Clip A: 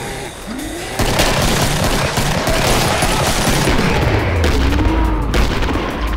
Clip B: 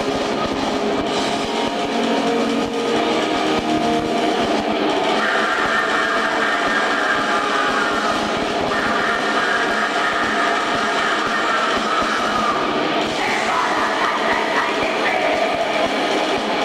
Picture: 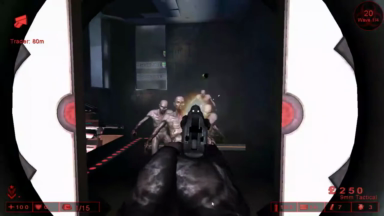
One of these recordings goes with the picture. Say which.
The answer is A